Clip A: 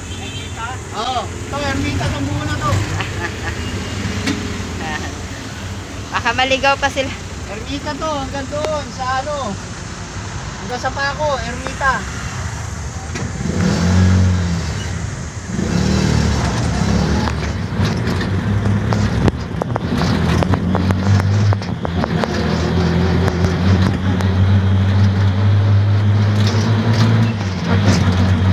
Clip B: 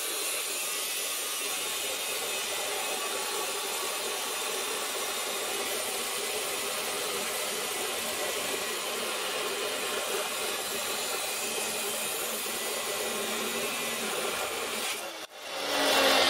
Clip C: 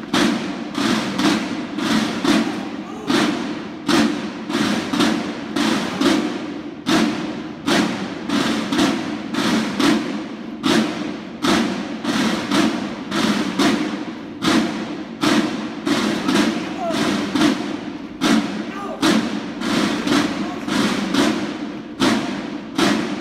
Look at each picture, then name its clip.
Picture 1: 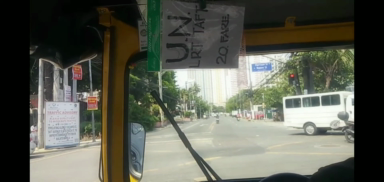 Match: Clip A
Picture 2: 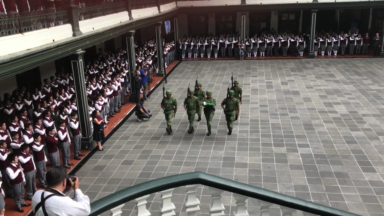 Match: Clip C